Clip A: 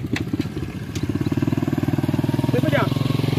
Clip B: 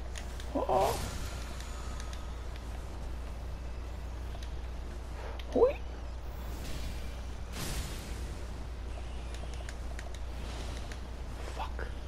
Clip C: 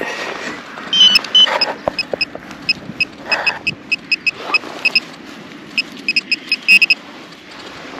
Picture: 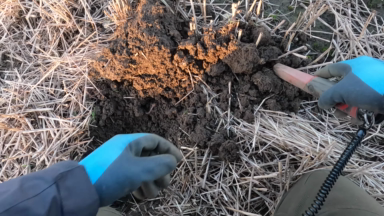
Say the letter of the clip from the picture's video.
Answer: C